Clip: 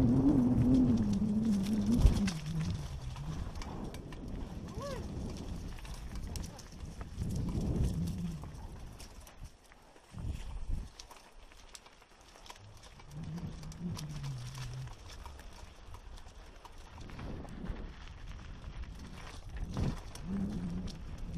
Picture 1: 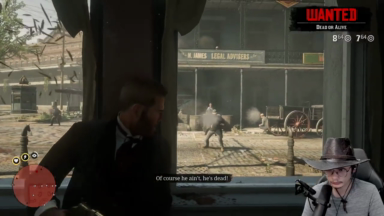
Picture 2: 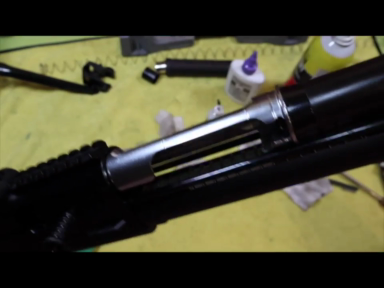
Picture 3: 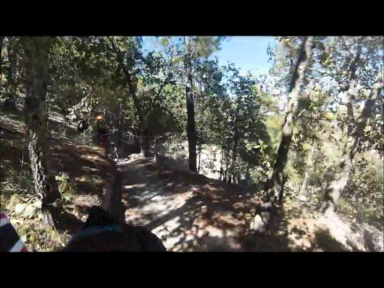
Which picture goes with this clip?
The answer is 3